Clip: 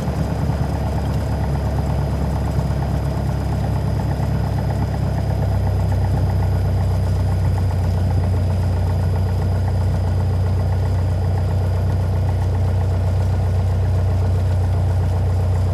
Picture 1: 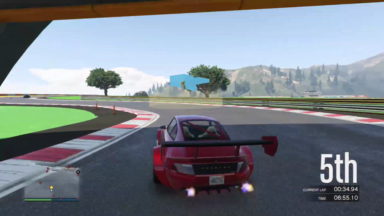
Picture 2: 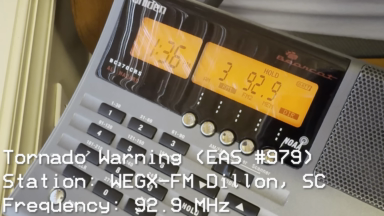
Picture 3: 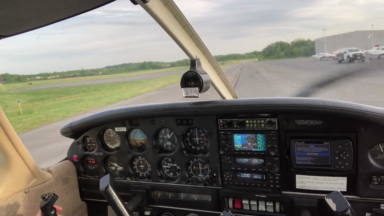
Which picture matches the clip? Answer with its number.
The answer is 3